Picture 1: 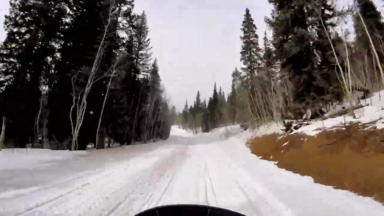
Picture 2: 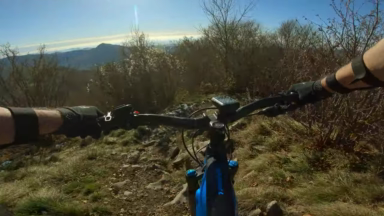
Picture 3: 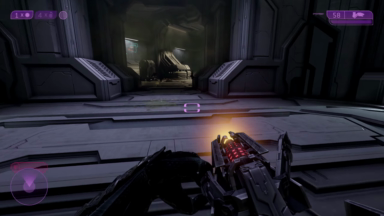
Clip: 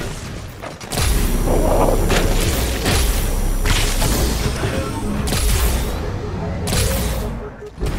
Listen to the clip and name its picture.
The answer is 3